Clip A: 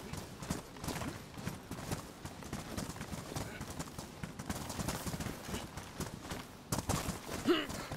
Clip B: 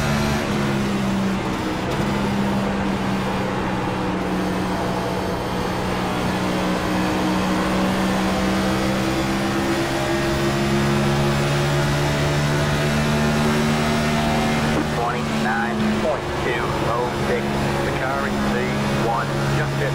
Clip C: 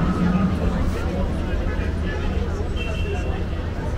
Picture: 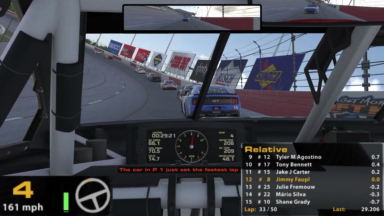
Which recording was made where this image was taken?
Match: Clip B